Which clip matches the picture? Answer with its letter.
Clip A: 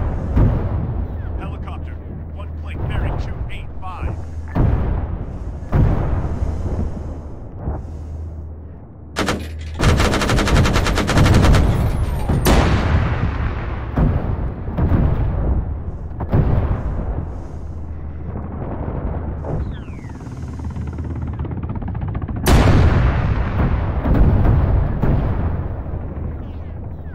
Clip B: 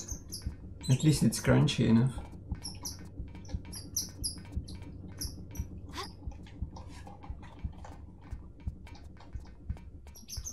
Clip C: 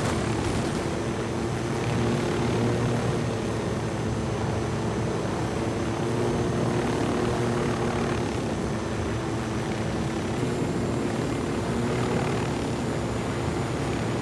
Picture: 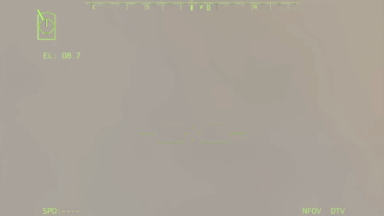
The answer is A